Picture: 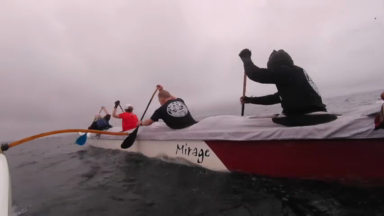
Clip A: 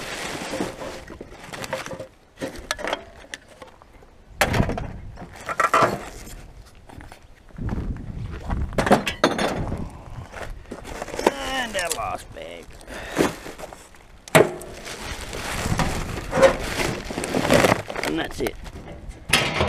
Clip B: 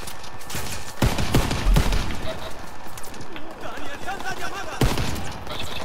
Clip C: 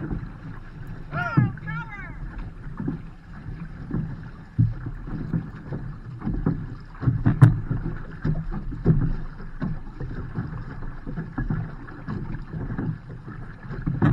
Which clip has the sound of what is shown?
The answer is C